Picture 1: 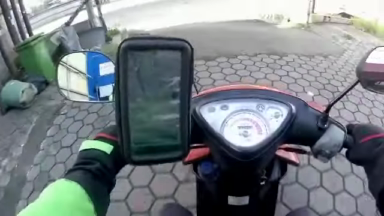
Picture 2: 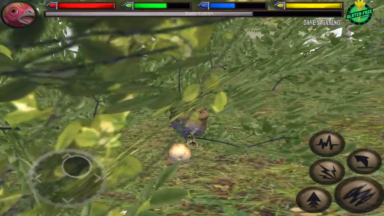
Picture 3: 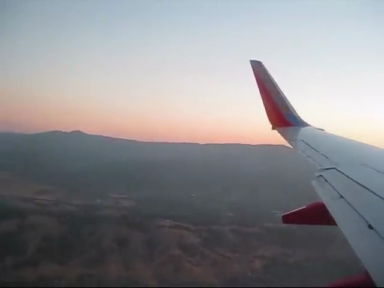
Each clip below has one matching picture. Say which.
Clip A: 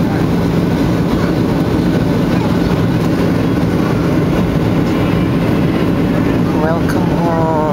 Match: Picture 3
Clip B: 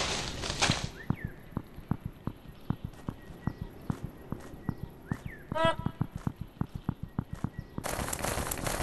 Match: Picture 2